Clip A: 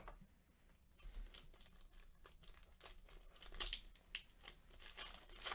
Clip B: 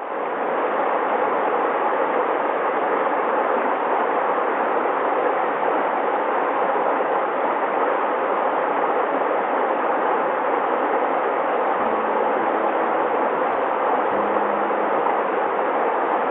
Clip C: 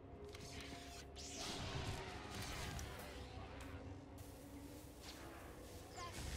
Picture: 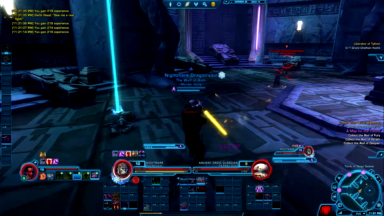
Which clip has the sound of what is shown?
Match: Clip C